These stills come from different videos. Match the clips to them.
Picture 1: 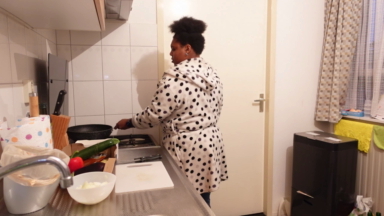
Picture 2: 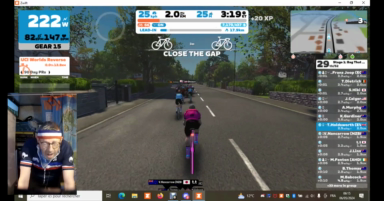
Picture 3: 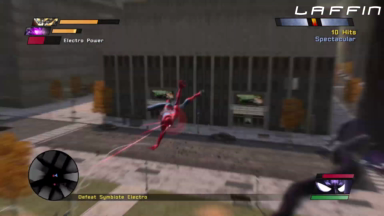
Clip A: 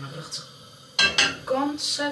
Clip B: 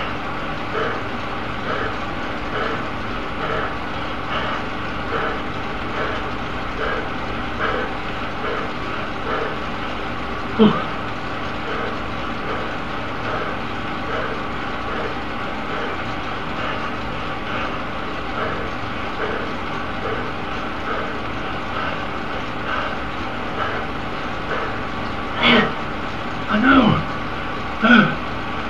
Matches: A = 1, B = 2